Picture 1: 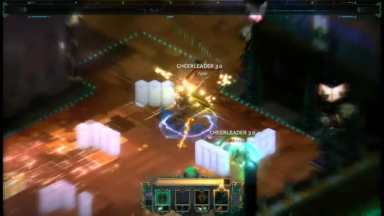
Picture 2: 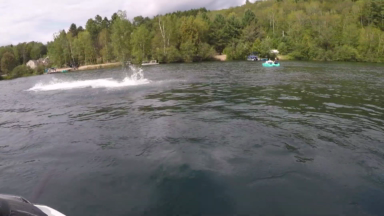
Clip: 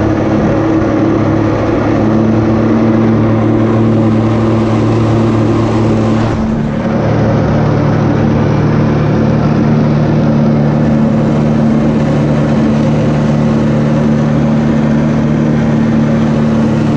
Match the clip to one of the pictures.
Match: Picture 2